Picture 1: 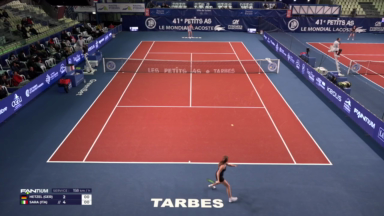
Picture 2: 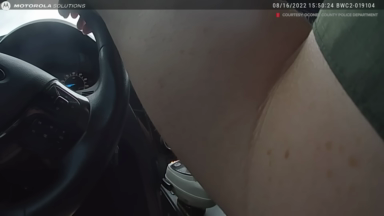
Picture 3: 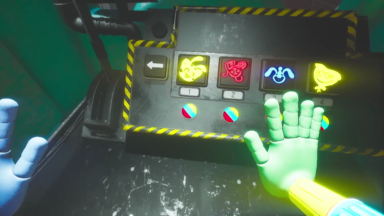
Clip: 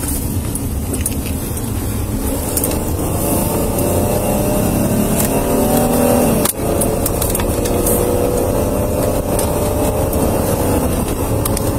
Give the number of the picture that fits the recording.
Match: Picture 2